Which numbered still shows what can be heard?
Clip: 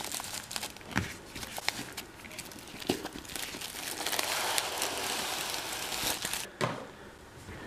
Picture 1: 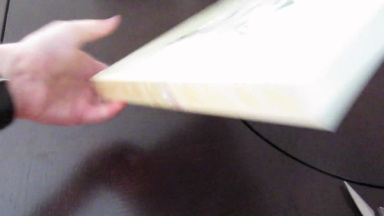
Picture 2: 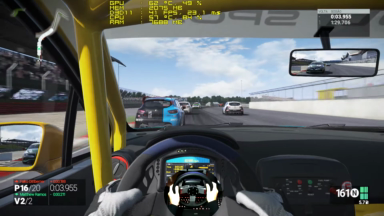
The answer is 1